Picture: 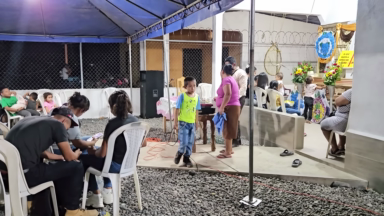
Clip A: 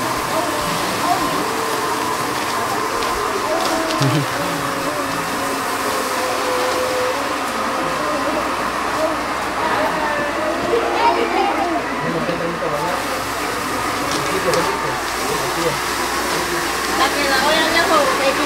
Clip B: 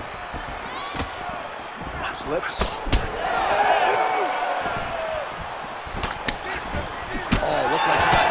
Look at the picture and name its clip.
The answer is A